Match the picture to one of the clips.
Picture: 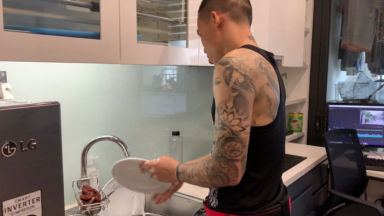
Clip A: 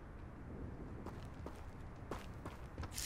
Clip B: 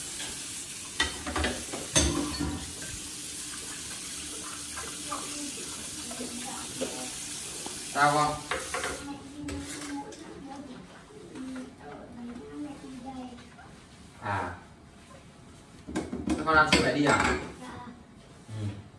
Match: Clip B